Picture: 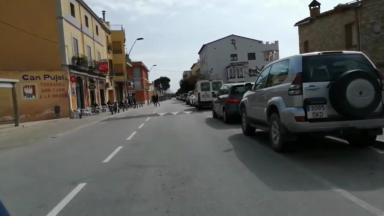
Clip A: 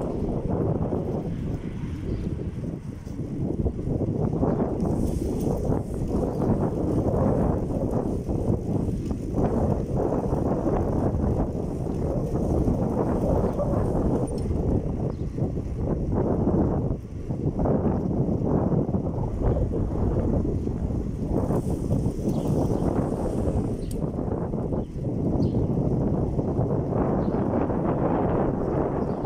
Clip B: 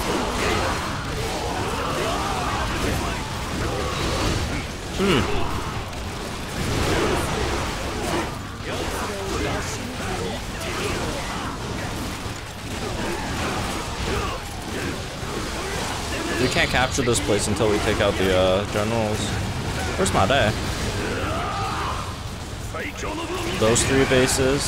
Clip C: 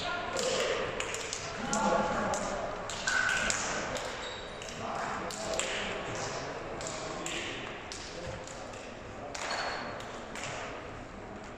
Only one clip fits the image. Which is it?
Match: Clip A